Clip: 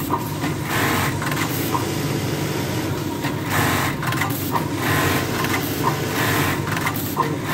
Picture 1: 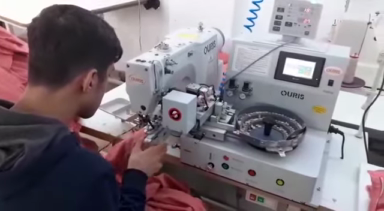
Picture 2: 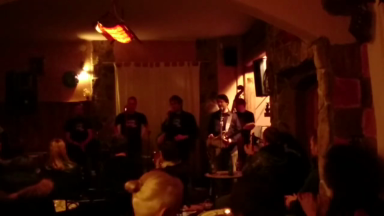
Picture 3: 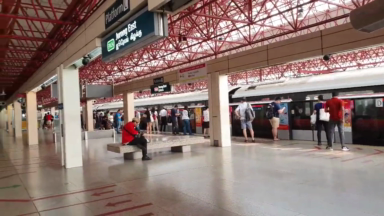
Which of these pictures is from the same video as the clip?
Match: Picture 1